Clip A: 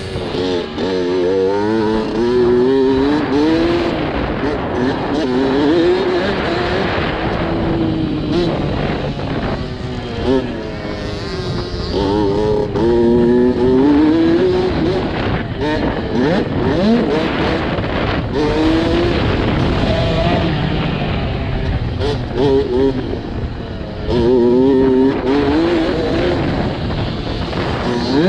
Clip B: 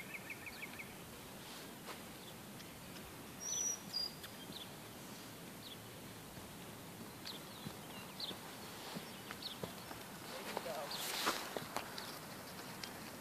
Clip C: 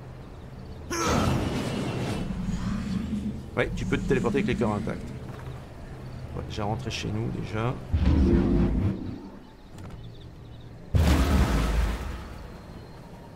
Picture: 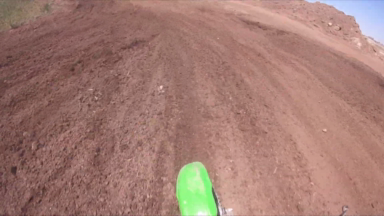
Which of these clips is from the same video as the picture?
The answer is A